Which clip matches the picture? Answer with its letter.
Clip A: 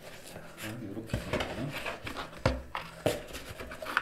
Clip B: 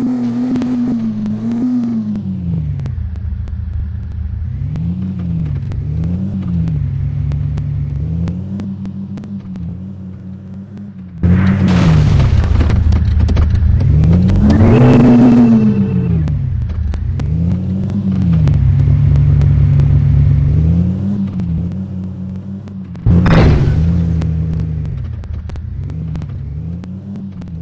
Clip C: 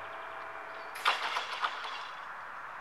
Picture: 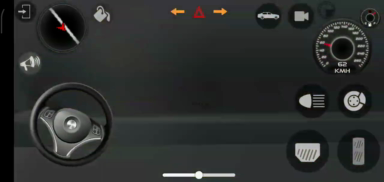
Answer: B